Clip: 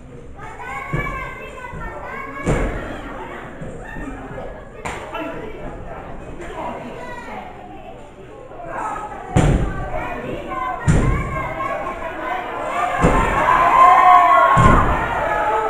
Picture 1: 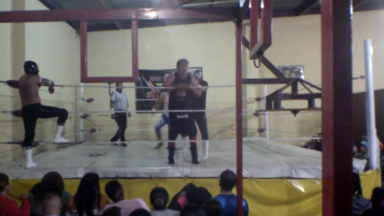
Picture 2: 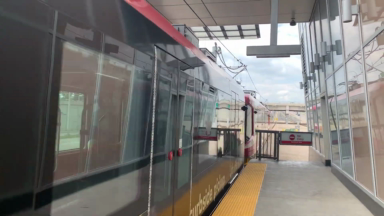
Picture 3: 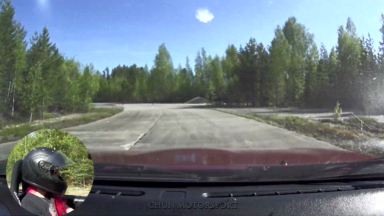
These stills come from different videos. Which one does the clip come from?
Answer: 1